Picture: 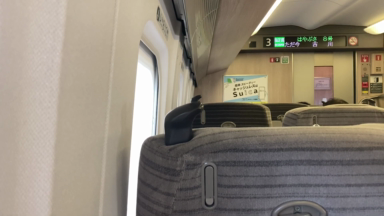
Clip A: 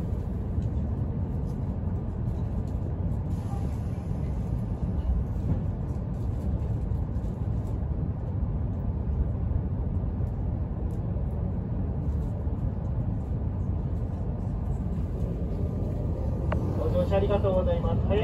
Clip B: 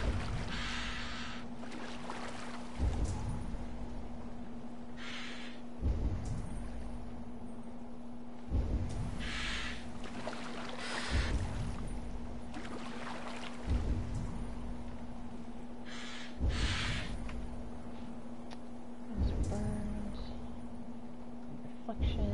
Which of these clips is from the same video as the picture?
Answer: A